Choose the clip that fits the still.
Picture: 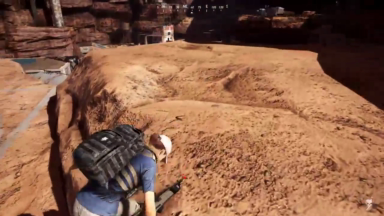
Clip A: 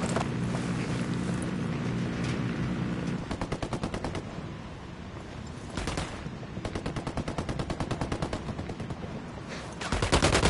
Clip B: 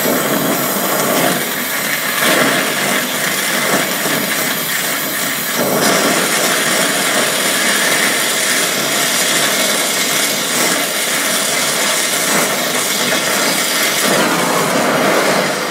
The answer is A